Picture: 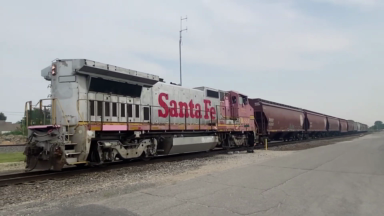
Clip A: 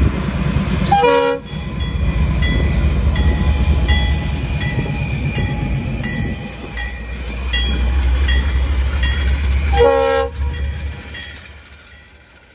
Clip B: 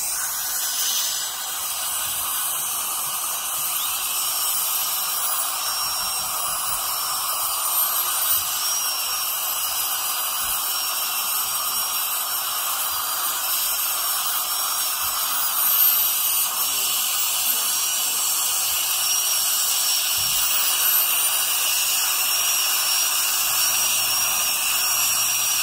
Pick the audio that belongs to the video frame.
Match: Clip A